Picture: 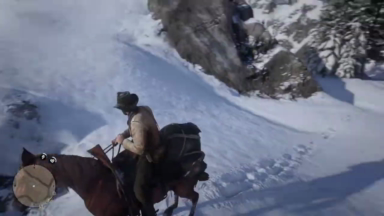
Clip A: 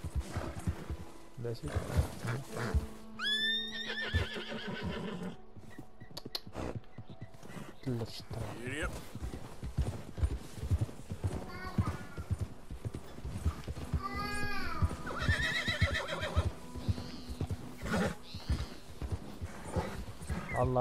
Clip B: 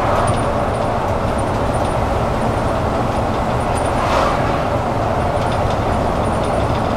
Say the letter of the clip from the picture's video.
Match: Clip A